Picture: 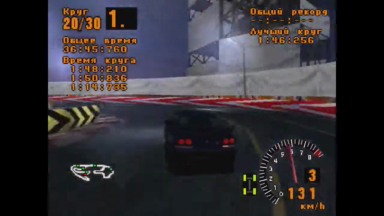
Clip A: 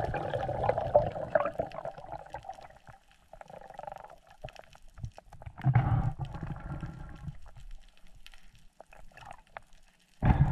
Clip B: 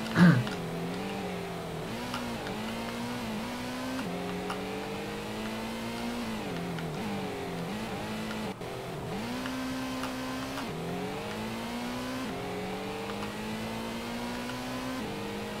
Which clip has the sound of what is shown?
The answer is B